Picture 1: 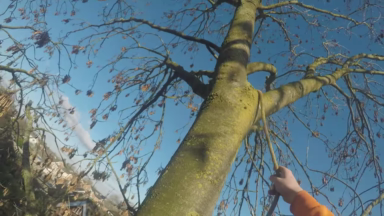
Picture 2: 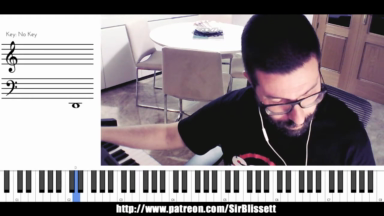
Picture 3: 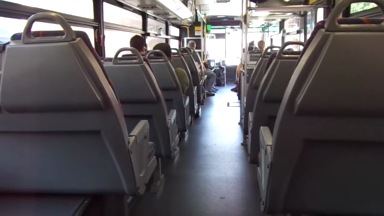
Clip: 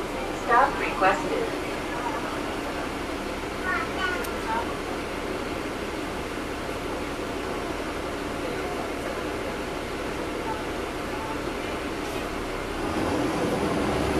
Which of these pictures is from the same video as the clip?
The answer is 3